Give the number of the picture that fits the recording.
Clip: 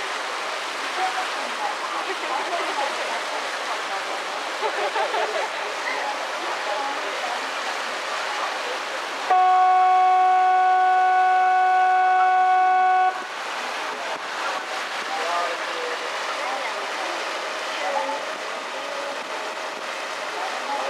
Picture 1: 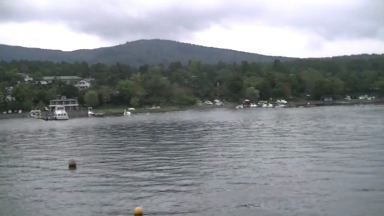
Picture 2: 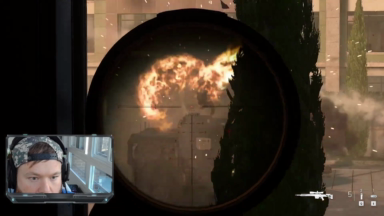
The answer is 1